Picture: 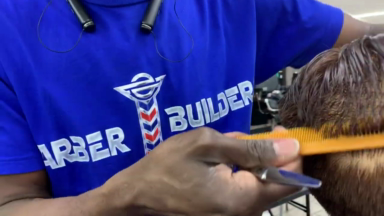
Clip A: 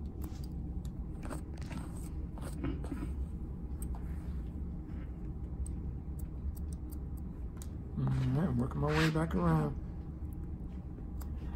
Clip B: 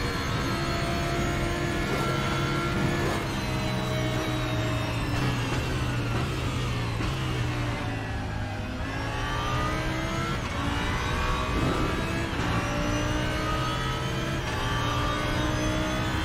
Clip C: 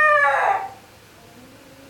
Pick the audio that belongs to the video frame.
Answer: A